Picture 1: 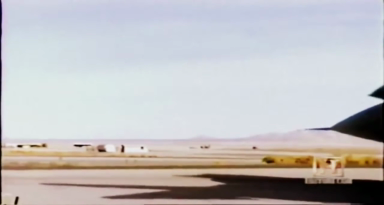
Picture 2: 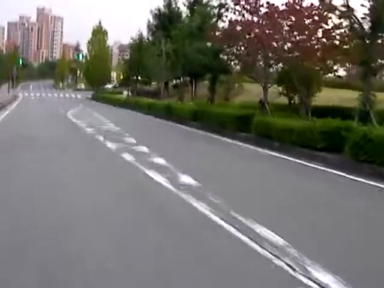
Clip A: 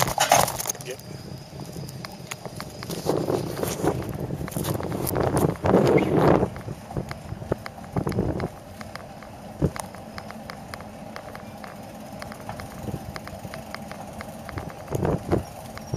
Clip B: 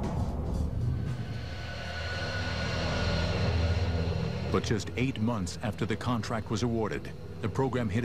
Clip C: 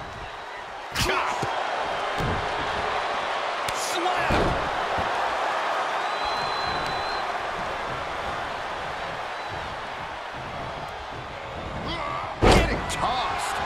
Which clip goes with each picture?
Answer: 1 B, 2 A